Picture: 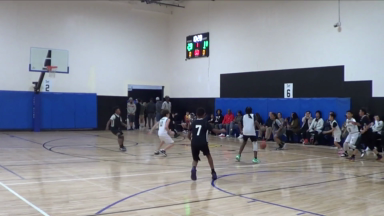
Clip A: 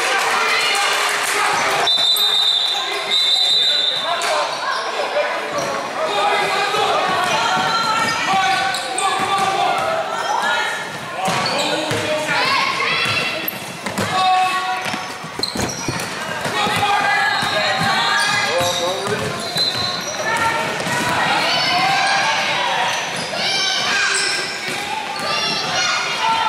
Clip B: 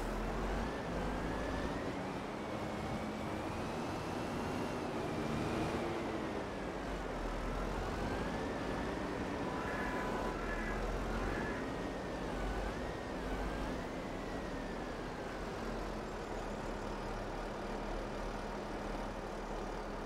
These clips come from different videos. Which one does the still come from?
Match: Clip A